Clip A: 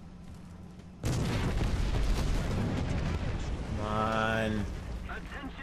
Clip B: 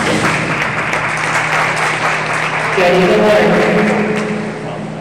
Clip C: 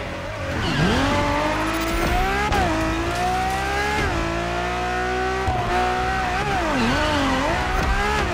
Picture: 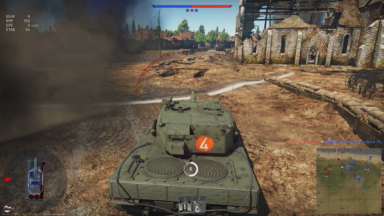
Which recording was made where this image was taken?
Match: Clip A